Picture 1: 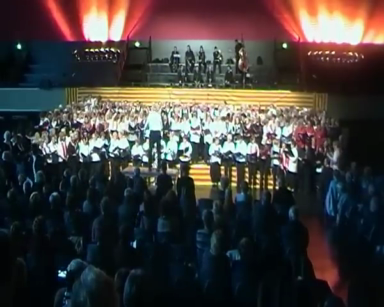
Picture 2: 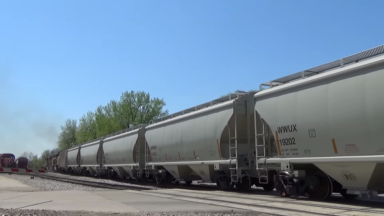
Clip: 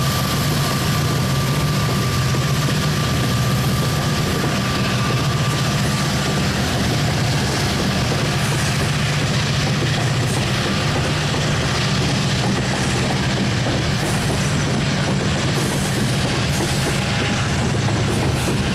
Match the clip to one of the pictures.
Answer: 2